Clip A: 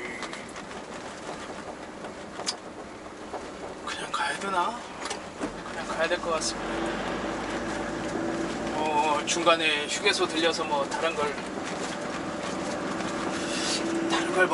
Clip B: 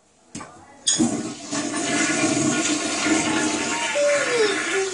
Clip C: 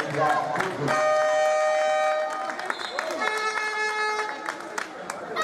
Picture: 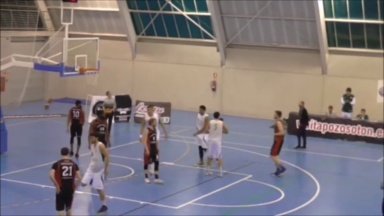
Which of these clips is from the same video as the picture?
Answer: C